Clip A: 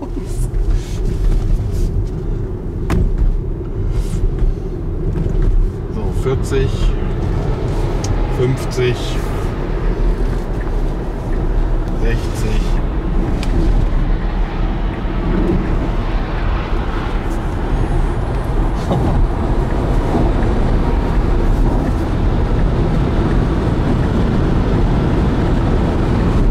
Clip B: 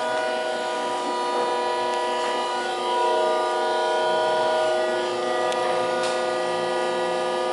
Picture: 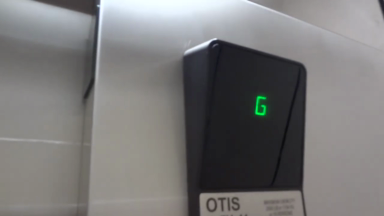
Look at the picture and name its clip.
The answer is B